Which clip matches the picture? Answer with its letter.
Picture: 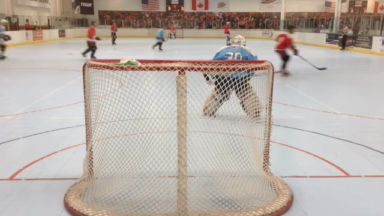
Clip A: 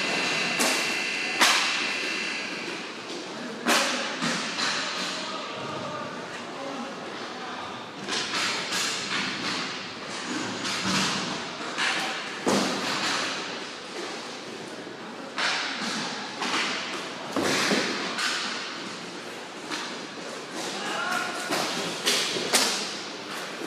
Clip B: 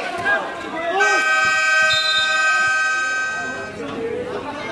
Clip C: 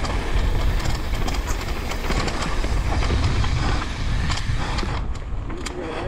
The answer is A